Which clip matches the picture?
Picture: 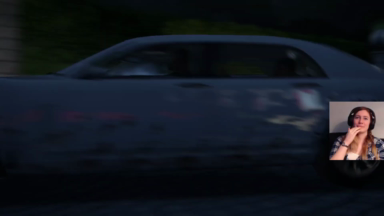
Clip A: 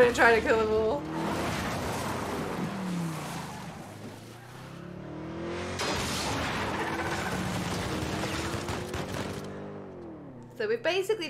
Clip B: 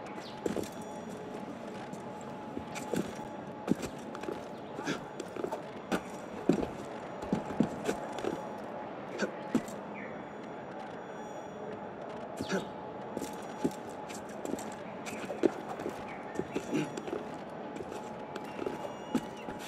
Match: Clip A